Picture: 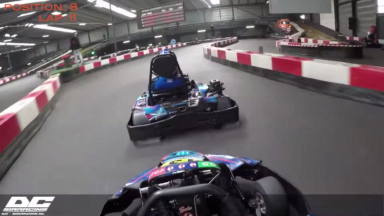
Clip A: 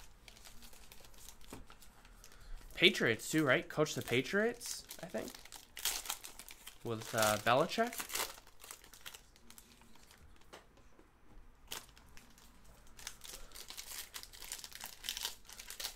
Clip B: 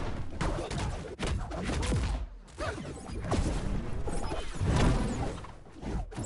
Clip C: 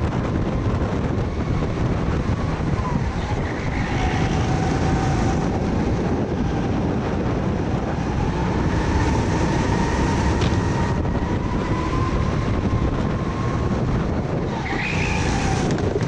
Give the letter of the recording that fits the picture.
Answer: C